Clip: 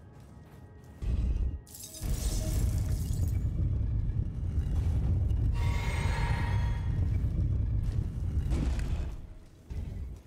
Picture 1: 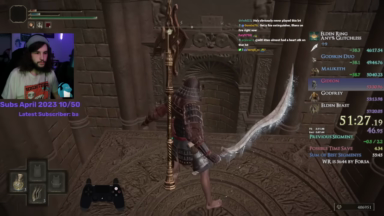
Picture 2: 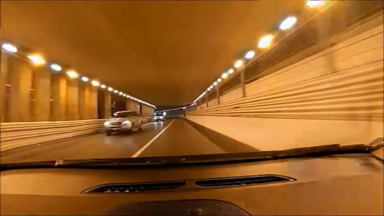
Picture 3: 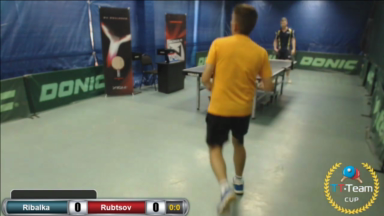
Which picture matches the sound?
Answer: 1